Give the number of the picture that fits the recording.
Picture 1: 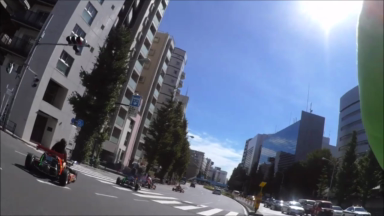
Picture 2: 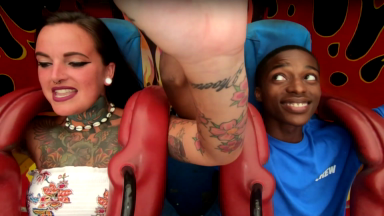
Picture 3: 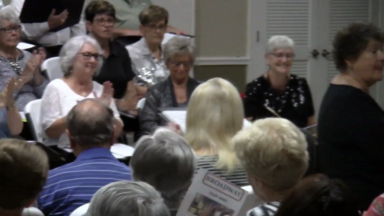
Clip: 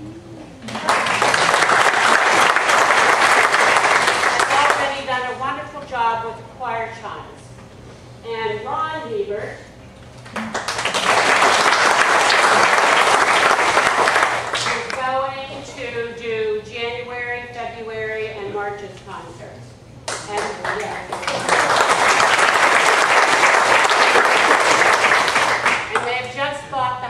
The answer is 3